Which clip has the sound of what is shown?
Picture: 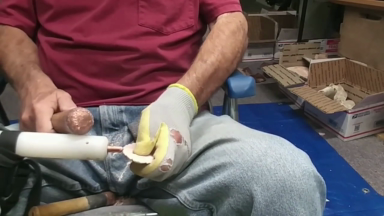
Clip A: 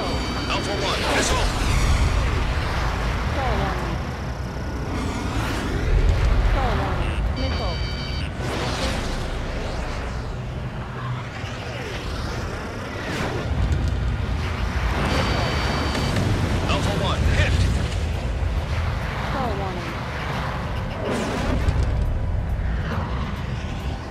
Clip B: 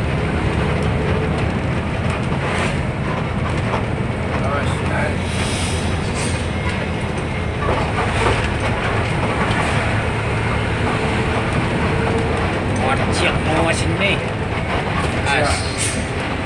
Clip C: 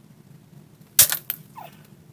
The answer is C